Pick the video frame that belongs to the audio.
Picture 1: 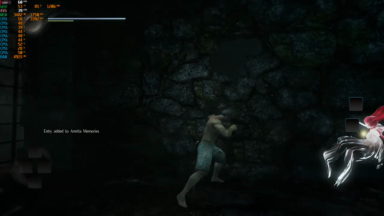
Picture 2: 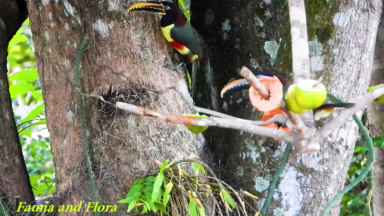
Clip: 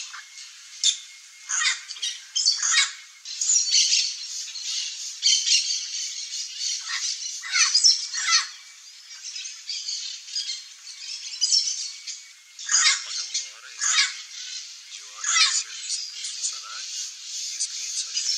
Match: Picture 2